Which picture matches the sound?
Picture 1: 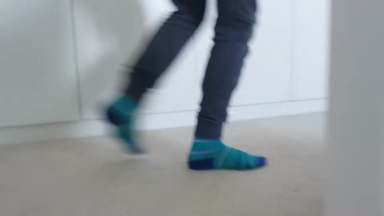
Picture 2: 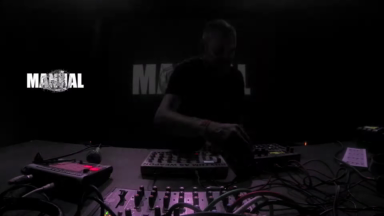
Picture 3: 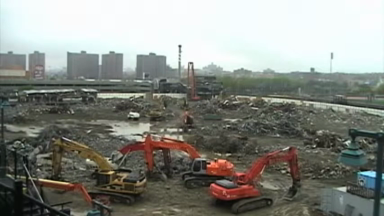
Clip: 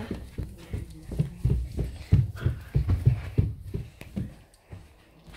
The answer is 1